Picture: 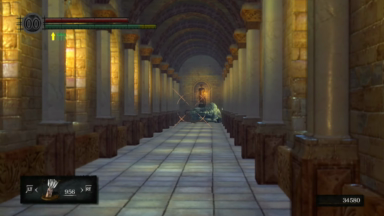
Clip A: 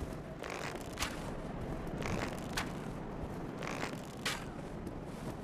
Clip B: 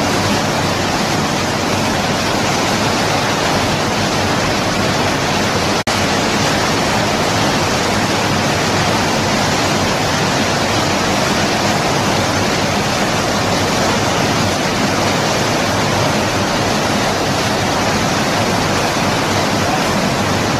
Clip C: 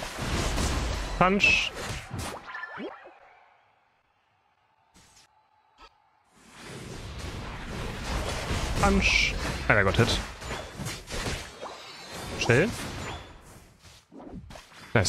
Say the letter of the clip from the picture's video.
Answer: A